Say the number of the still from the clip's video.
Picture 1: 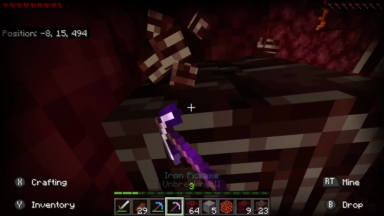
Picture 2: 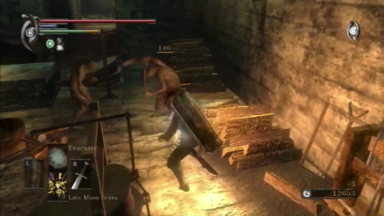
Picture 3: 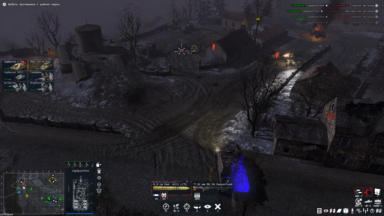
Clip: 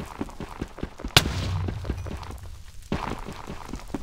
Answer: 1